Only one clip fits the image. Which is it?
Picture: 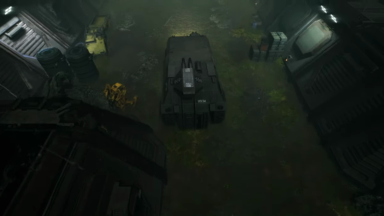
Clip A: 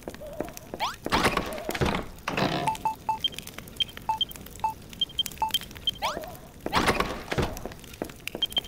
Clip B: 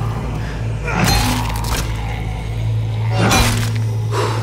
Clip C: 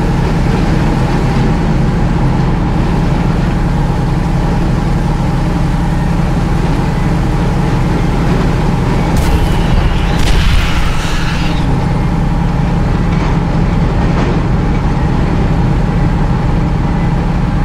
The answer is C